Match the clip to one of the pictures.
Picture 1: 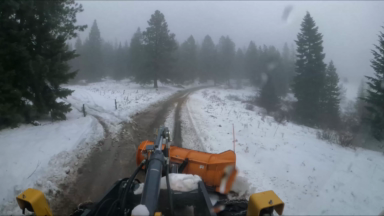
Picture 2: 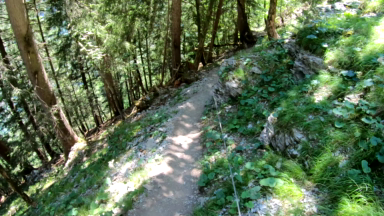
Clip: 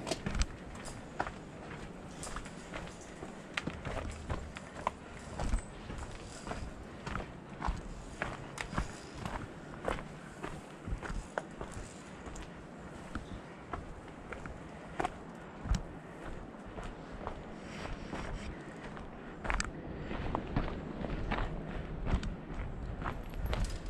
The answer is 2